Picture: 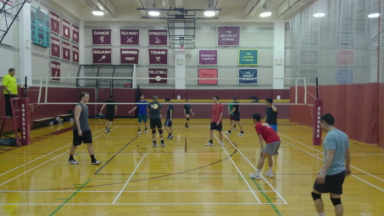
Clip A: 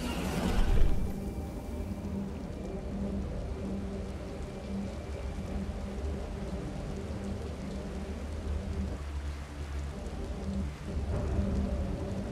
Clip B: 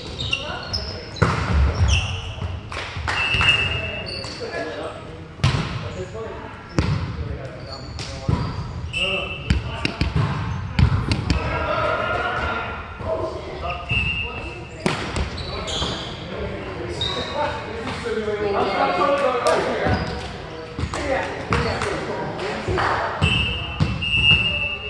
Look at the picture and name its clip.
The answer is B